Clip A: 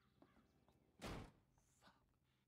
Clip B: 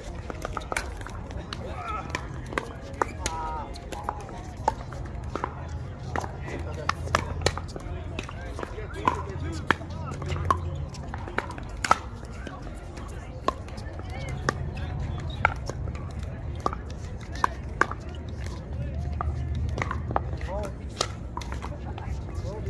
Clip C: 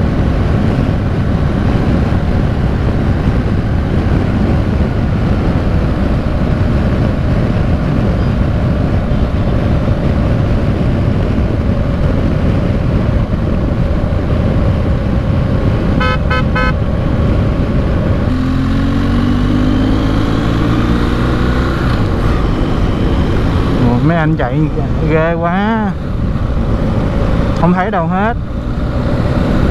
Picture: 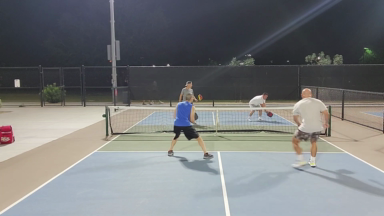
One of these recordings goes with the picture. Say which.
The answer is B